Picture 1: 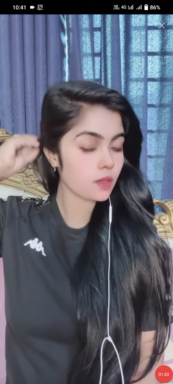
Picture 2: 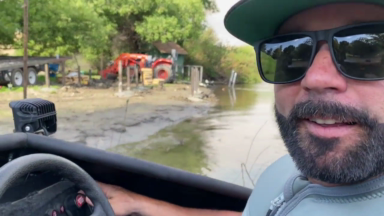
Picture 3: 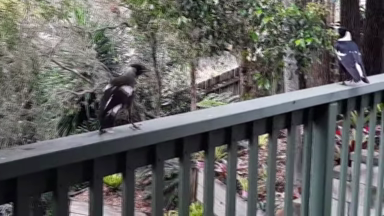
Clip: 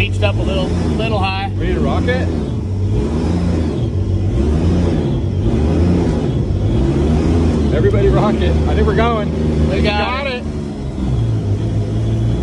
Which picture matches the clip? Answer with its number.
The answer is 2